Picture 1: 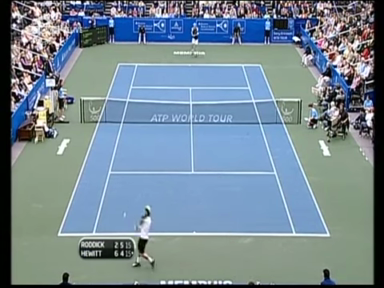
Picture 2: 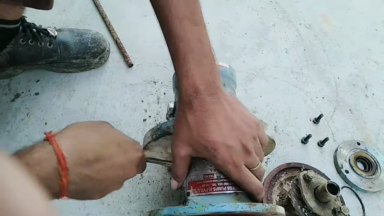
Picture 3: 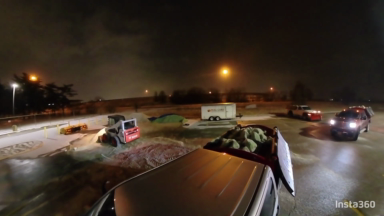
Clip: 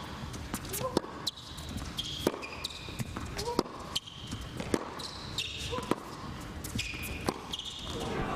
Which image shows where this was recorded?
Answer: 1